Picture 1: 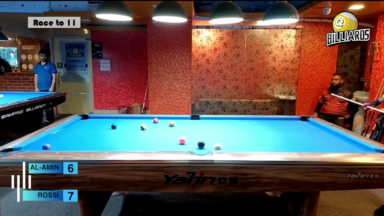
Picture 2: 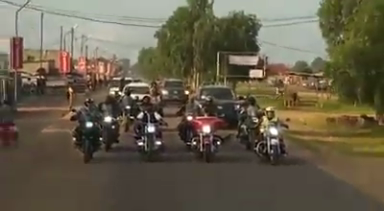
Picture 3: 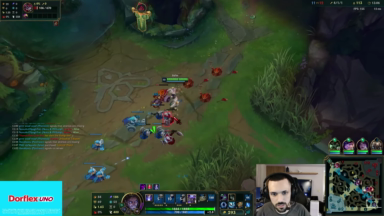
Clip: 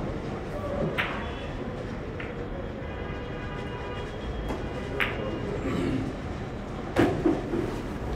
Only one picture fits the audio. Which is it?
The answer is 1